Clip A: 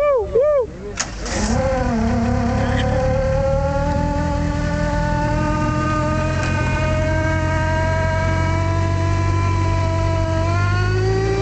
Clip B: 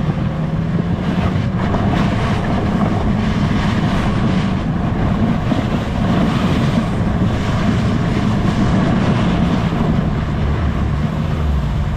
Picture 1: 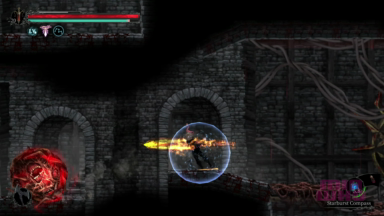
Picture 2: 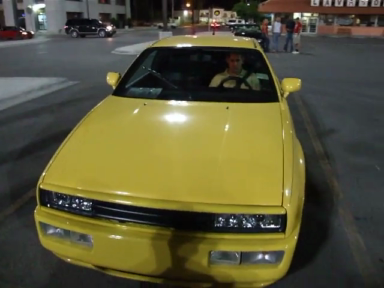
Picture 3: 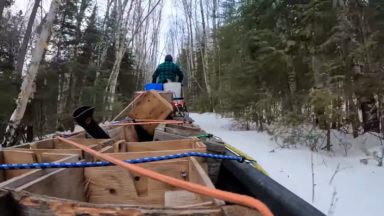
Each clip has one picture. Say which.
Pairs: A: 2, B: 3